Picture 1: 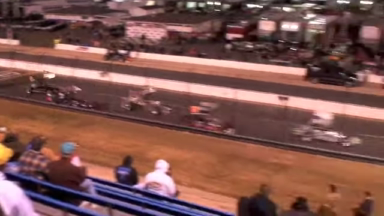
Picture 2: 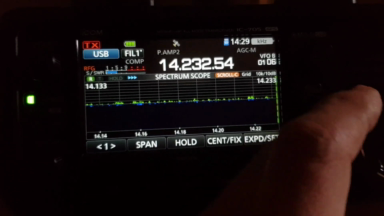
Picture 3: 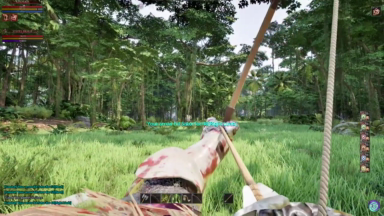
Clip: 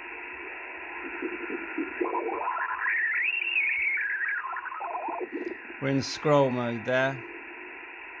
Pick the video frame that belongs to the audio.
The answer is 2